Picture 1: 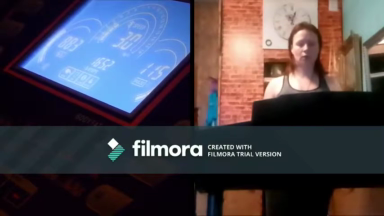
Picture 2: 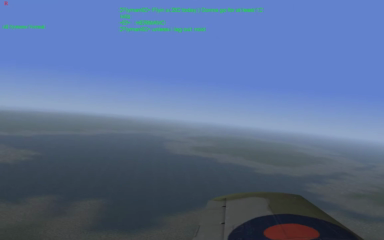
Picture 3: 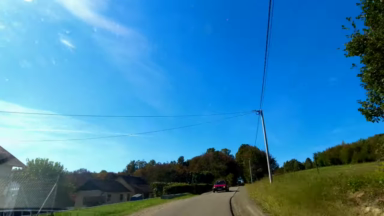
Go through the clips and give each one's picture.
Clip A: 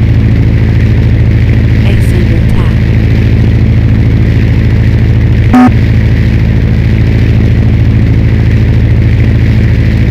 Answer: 2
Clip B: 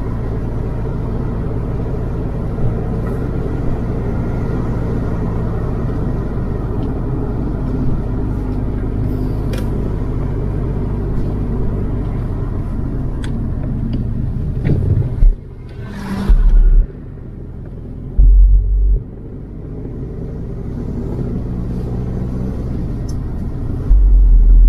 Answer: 3